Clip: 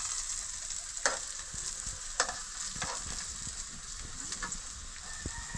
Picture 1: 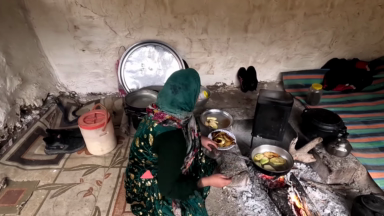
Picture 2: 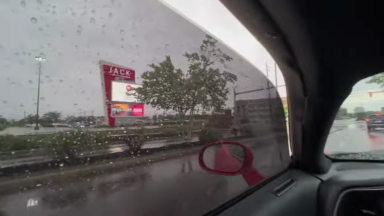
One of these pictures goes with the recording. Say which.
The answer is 1